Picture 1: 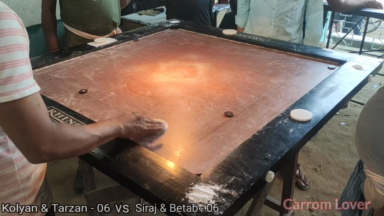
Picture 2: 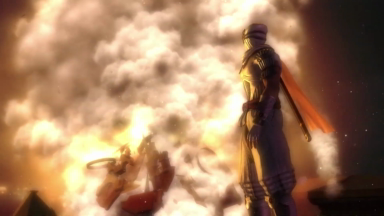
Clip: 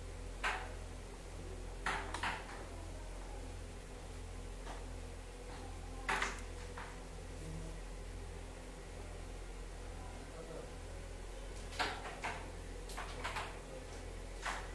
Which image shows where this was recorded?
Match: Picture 1